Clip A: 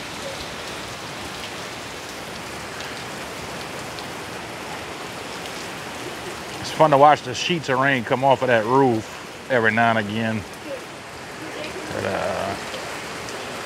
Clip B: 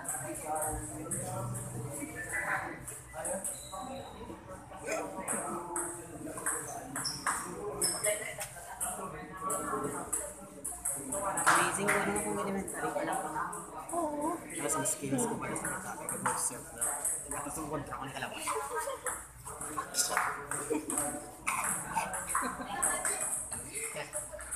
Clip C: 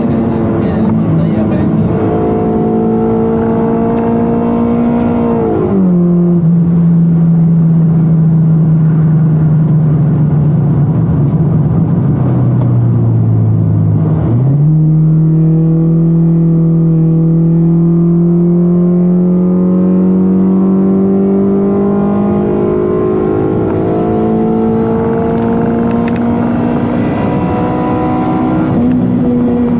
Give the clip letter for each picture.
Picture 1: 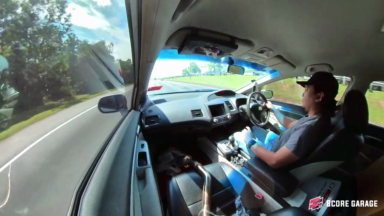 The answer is C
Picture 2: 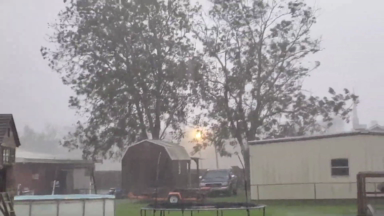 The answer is A